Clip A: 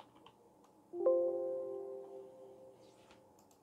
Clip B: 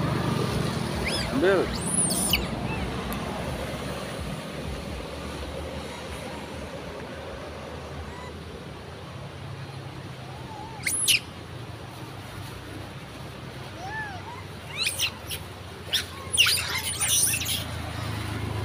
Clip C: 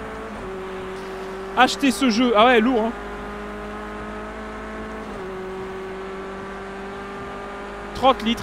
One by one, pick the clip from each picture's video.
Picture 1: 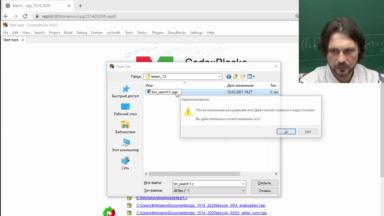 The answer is A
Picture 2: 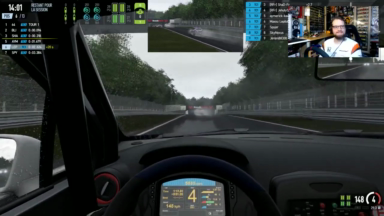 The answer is C